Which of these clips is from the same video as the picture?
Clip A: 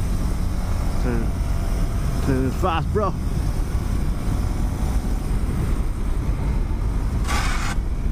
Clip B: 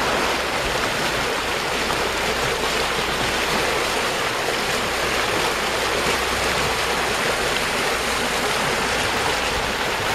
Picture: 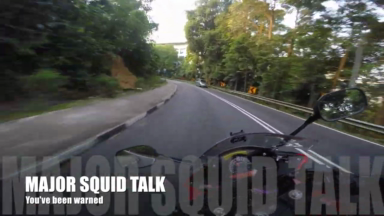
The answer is A